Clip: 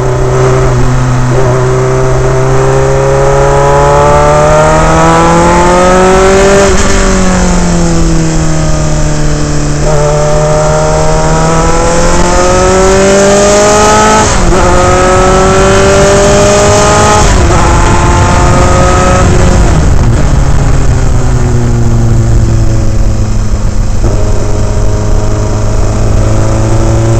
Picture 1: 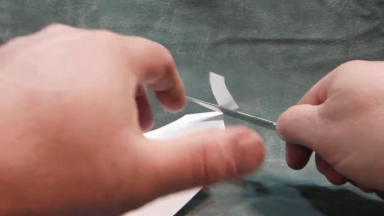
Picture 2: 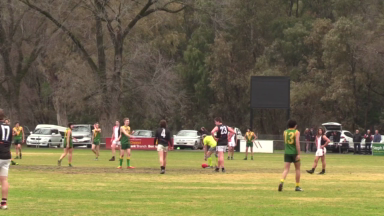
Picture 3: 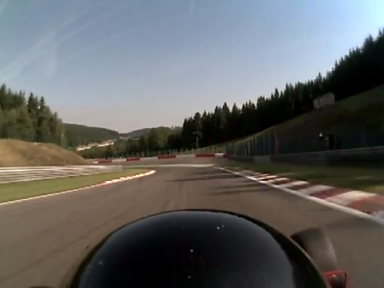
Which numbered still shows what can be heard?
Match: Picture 3